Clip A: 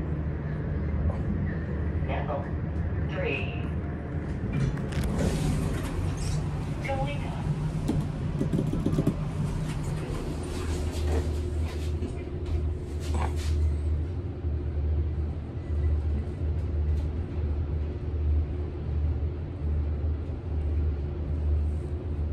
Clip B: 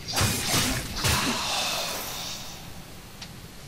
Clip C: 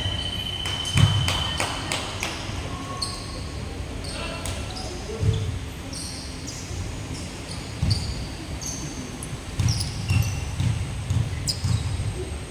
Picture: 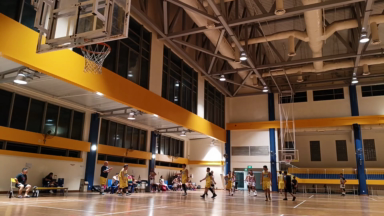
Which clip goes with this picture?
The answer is C